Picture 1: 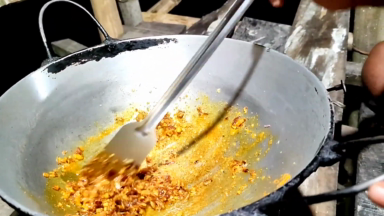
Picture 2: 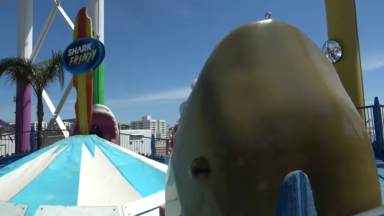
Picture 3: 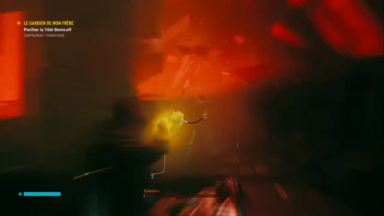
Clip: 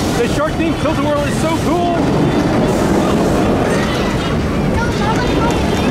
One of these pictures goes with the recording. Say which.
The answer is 2